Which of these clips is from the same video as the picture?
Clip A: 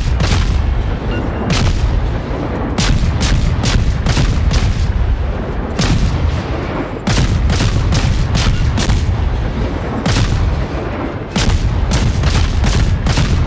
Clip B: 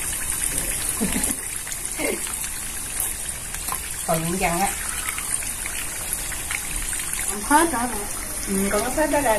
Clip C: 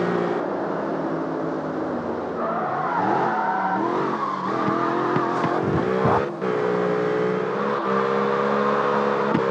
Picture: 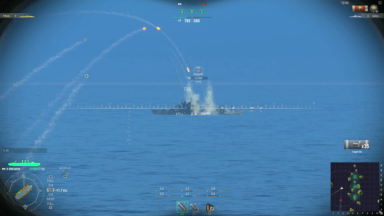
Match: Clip A